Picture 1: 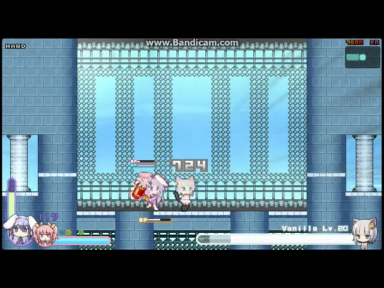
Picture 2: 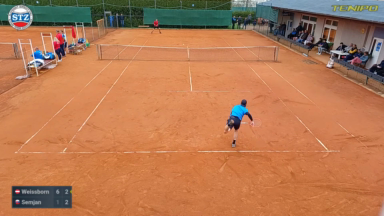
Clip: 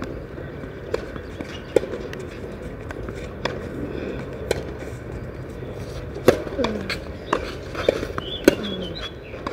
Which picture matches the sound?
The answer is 2